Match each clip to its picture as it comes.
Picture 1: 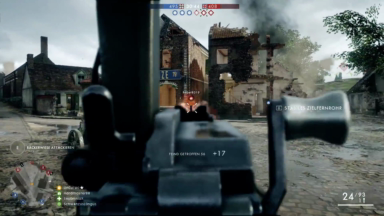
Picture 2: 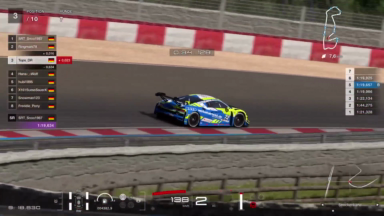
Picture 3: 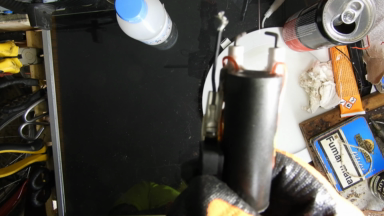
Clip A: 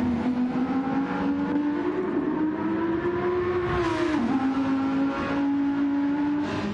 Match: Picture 2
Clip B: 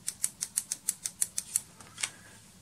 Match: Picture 3